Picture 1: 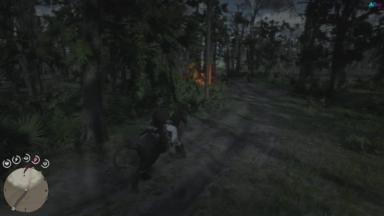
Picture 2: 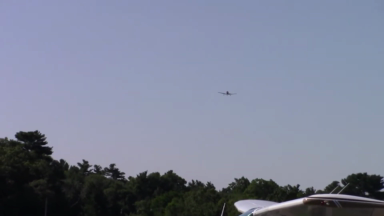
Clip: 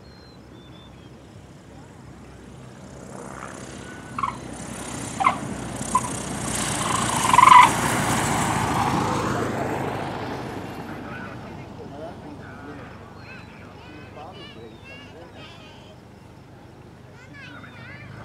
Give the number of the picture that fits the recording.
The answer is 2